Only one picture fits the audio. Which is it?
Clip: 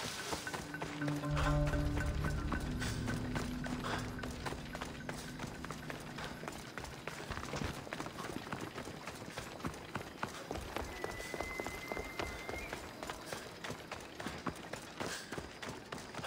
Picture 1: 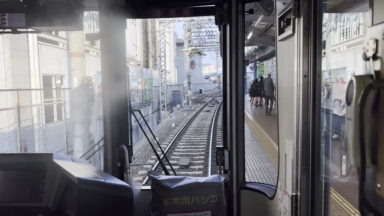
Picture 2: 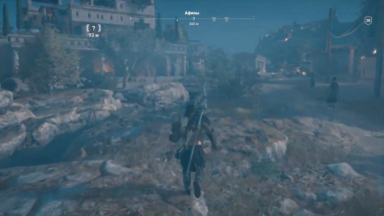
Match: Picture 2